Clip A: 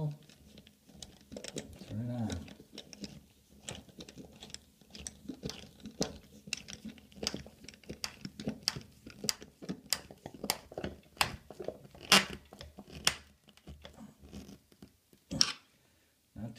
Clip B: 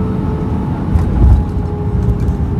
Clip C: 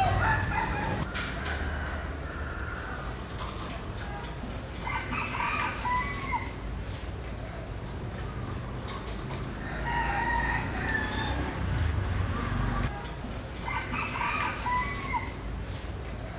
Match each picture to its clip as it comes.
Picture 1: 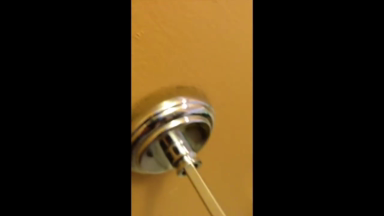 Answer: A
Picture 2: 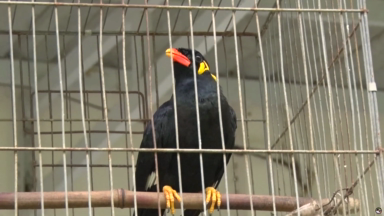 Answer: C